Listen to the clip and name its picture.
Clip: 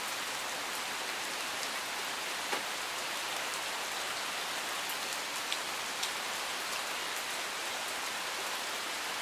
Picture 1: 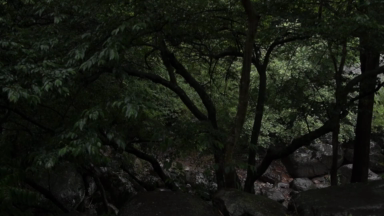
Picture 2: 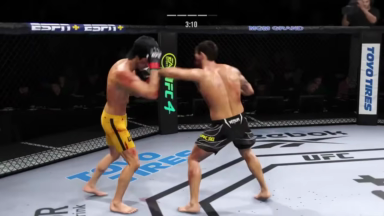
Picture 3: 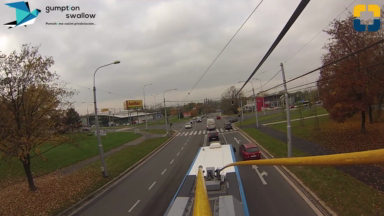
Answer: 1